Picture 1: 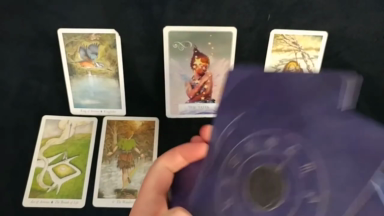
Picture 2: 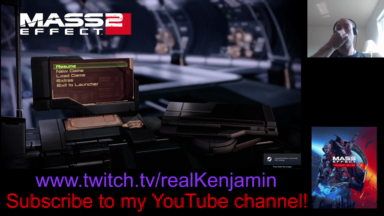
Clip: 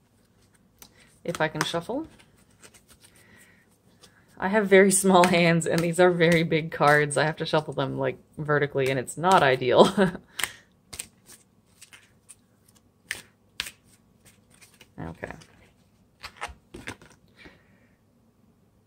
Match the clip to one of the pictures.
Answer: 1